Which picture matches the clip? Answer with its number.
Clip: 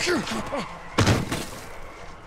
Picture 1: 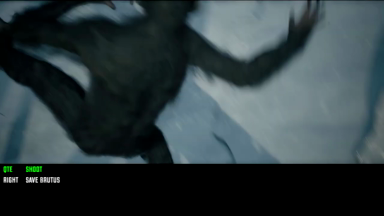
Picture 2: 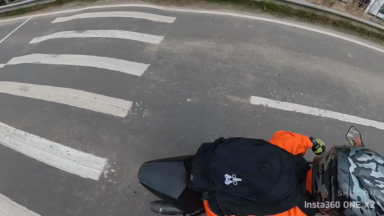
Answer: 1